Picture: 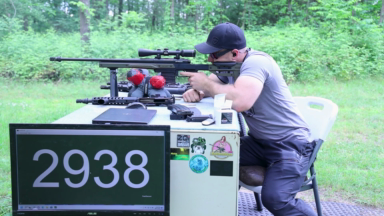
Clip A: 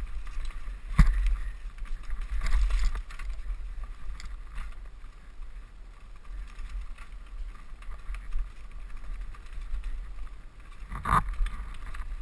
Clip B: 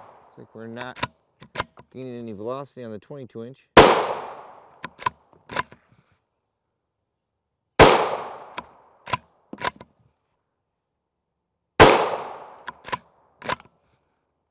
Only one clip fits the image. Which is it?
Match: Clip B